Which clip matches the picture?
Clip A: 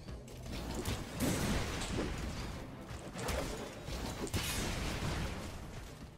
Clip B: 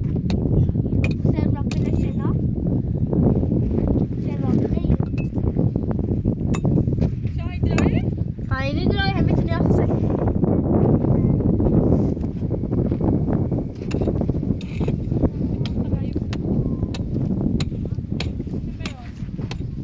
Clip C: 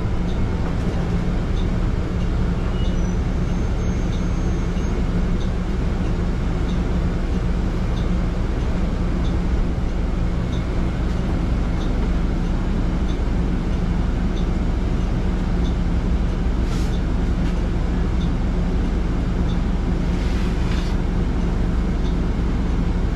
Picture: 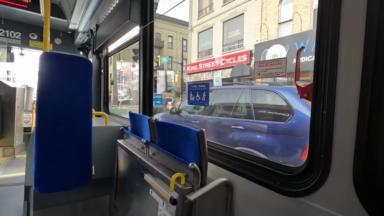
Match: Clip C